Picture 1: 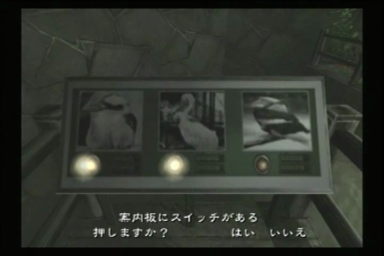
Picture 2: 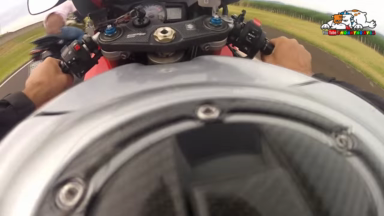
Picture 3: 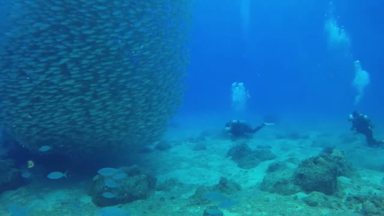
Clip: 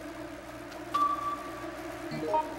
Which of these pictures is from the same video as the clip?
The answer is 1